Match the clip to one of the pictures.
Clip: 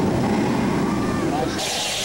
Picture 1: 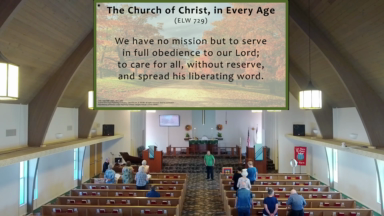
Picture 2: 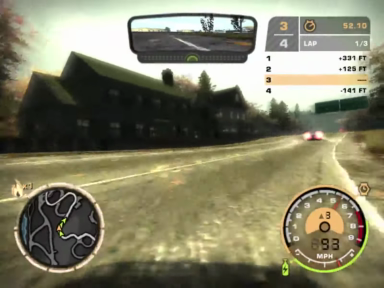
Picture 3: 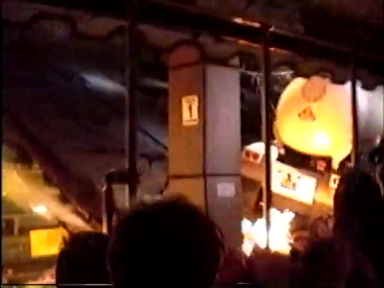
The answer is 3